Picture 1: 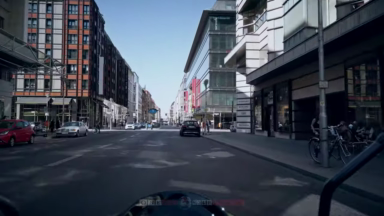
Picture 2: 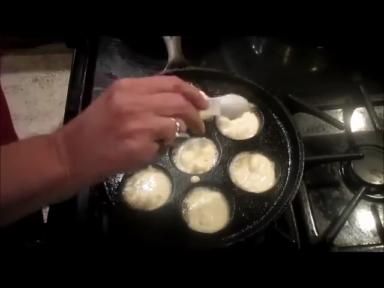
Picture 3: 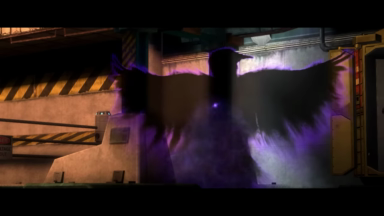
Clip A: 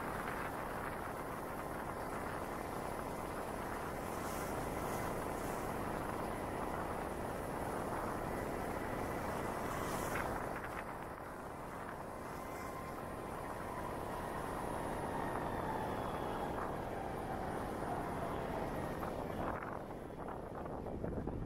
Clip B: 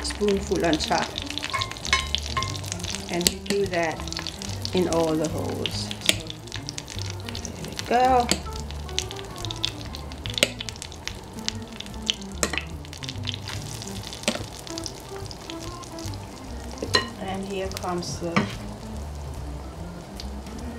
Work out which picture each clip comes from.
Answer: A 1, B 2